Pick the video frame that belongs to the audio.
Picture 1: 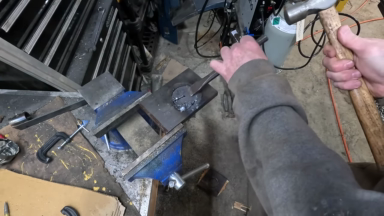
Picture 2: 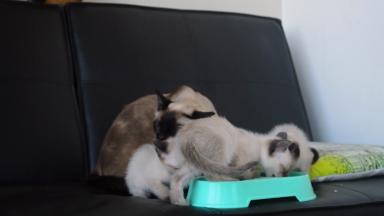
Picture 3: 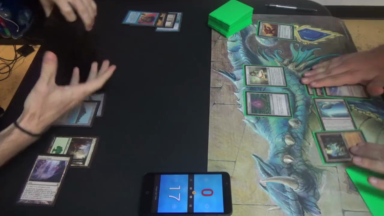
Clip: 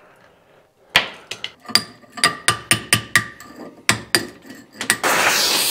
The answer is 1